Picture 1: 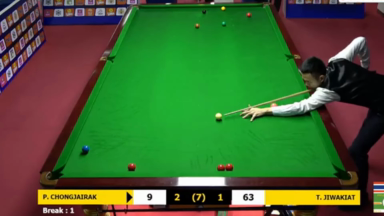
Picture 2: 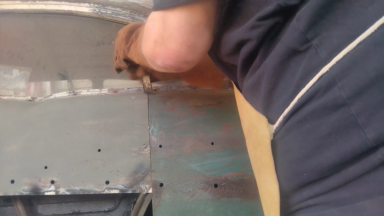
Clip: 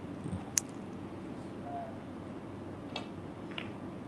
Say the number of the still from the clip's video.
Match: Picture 1